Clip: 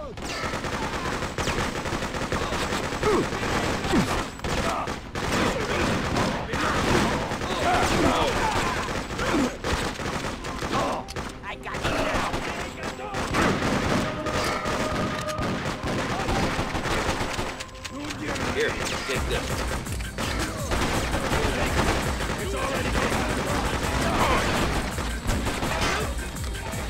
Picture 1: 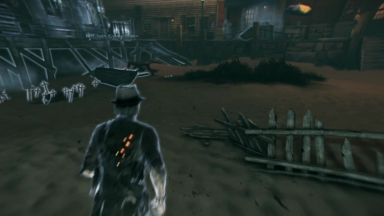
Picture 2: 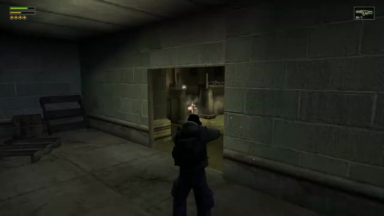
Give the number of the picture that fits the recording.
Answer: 2